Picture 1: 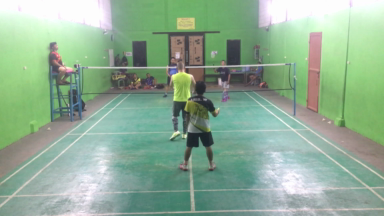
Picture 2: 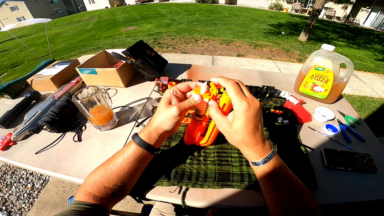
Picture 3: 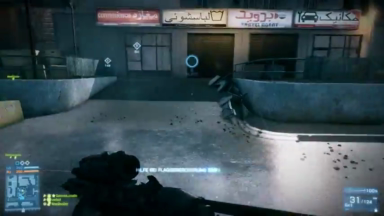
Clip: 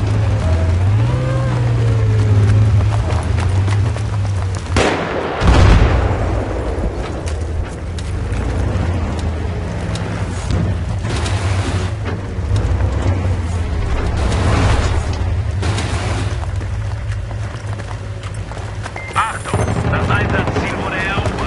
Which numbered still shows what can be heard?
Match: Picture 3